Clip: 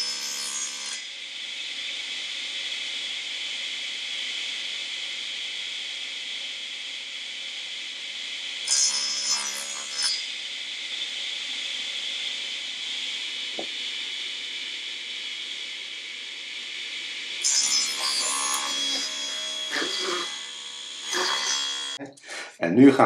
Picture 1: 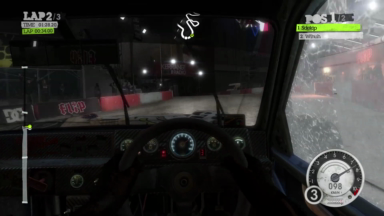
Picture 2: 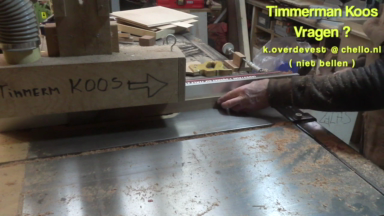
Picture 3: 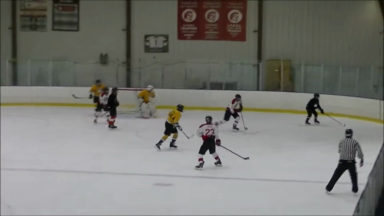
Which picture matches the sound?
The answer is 2